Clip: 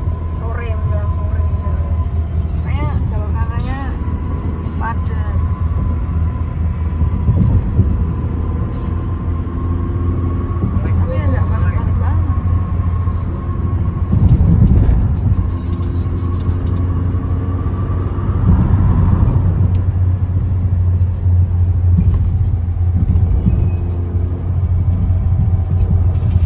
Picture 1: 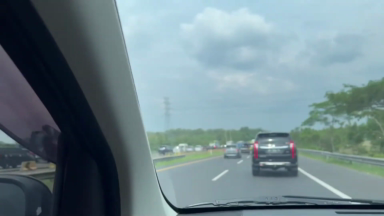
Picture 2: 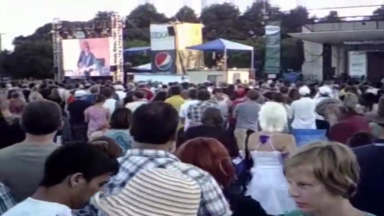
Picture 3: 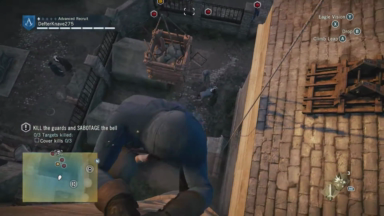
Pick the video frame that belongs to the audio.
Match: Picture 1